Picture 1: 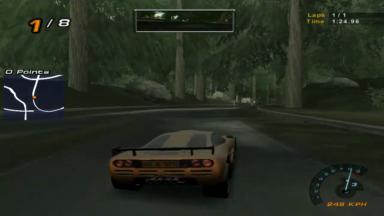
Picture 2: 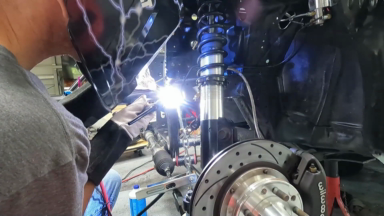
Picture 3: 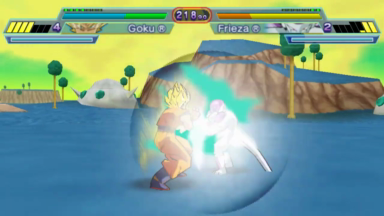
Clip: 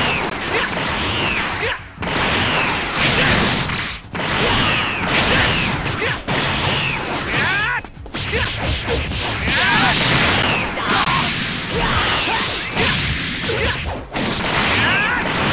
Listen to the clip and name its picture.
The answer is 3